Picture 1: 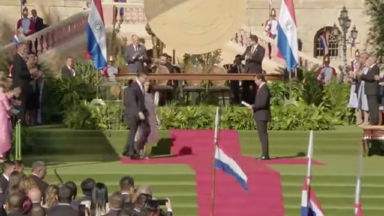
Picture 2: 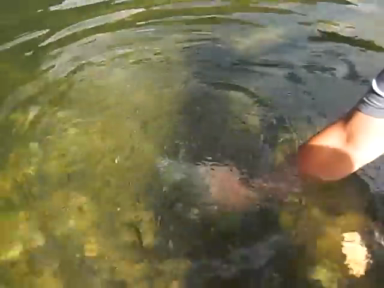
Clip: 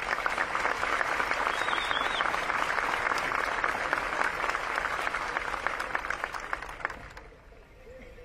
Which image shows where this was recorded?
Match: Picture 1